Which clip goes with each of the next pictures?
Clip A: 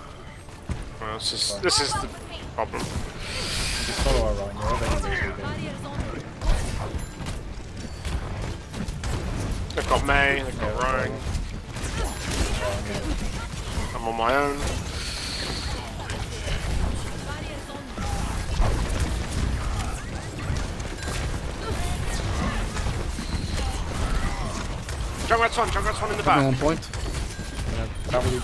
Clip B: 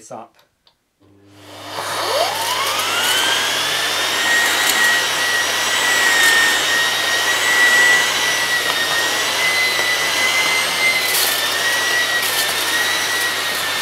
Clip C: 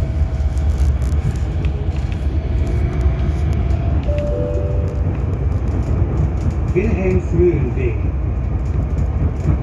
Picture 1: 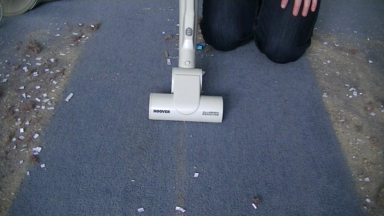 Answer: B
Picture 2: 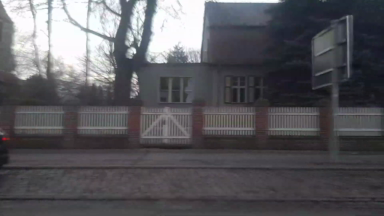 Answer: C